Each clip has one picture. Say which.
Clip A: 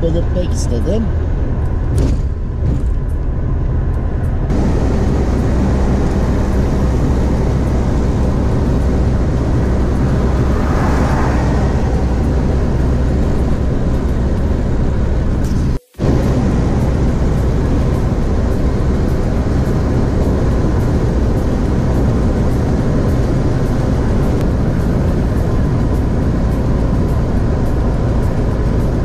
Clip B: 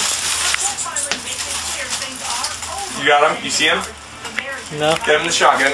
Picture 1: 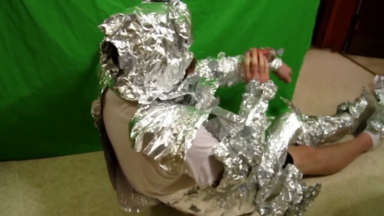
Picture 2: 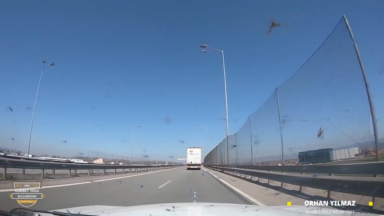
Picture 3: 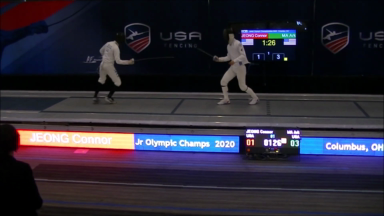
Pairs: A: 2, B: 1